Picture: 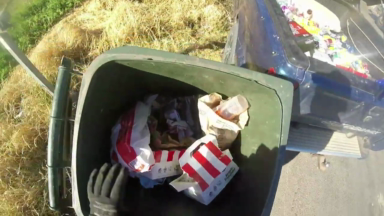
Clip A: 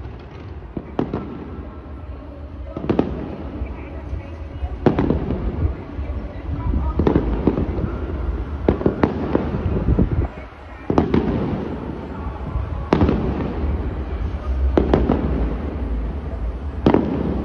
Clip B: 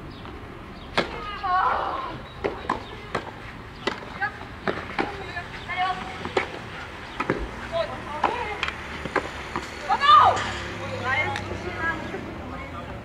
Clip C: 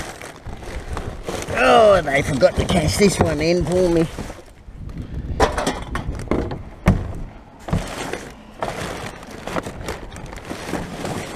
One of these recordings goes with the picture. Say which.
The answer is C